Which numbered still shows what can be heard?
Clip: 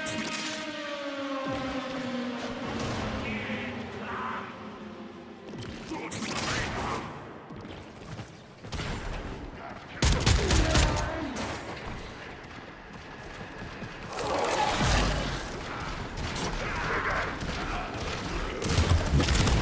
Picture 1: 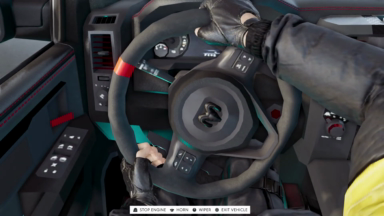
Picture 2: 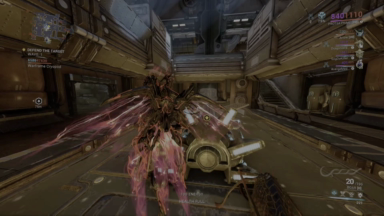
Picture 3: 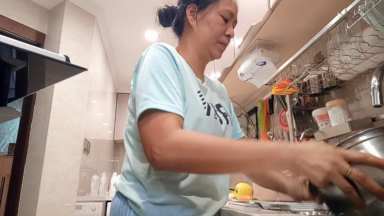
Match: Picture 2